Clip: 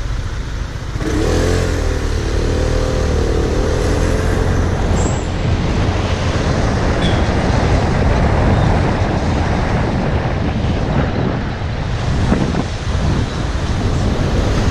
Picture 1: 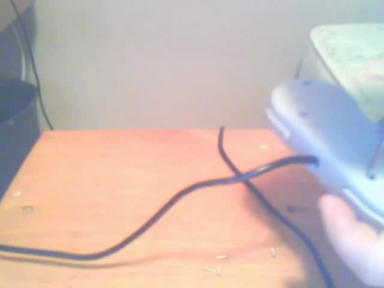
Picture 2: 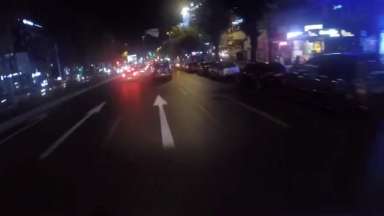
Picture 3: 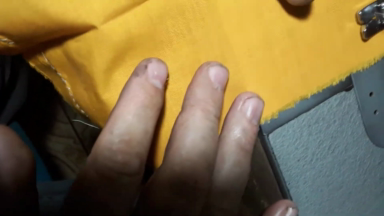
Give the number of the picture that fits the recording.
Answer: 2